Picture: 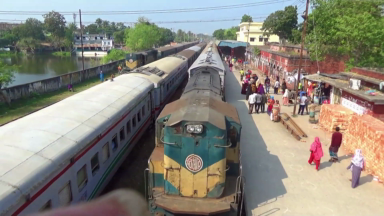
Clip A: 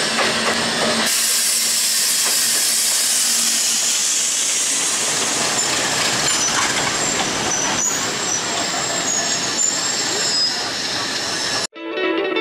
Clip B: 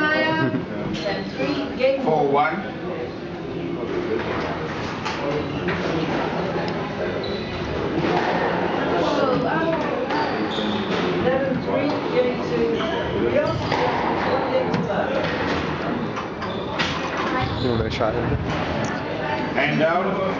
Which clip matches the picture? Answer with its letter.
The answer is A